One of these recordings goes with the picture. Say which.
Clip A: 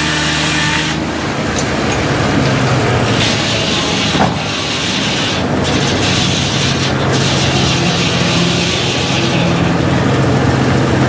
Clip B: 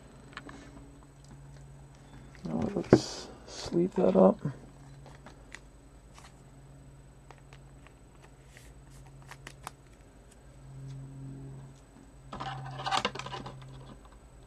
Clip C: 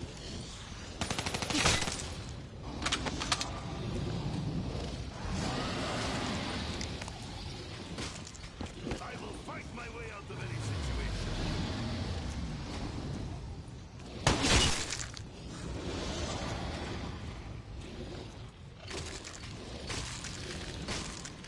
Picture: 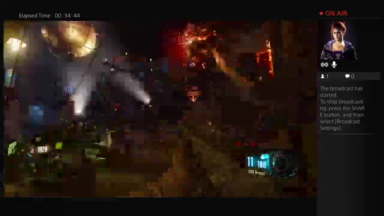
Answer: C